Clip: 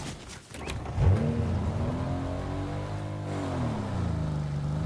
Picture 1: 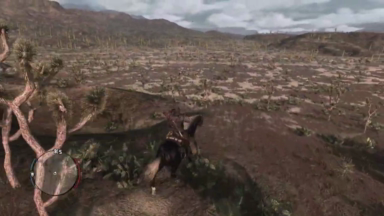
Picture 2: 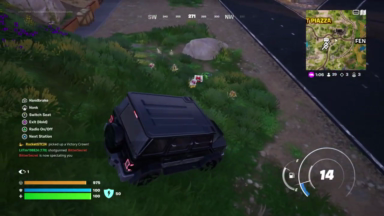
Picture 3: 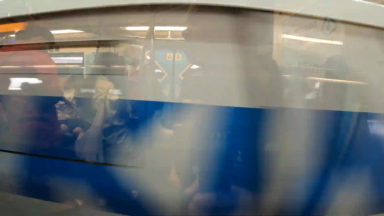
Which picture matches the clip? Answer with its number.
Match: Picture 2